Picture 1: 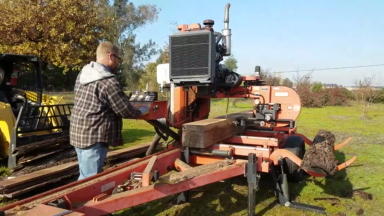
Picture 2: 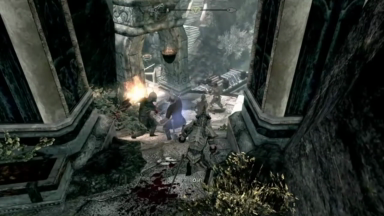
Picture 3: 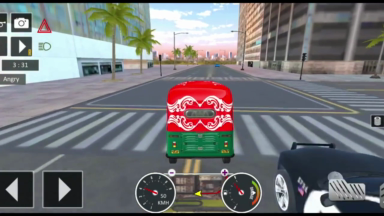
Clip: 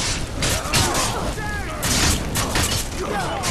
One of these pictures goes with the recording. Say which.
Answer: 2